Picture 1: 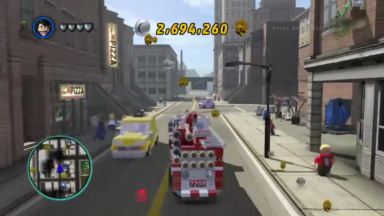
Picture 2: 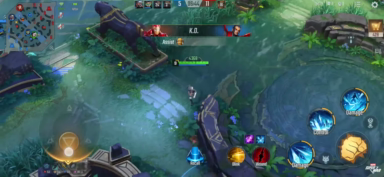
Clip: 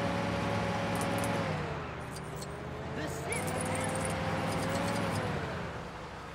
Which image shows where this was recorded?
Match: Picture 1